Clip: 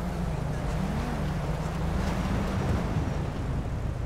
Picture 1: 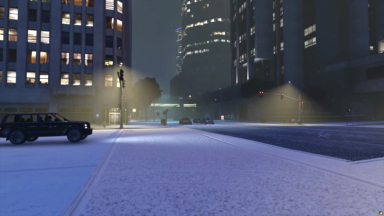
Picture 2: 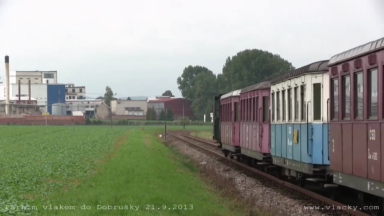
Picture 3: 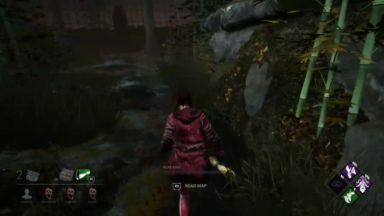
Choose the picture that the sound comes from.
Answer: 1